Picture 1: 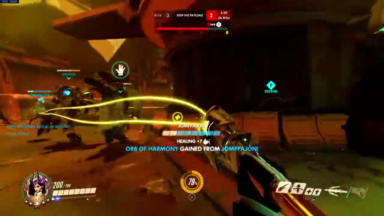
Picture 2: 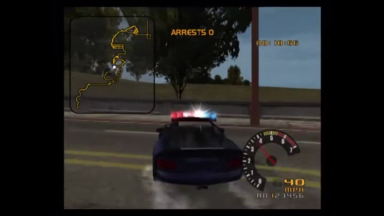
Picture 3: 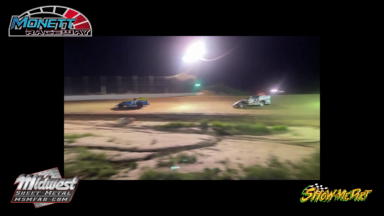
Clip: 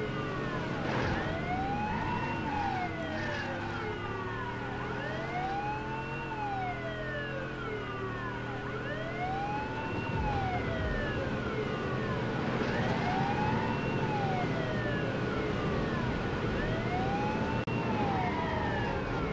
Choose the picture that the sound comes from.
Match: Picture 2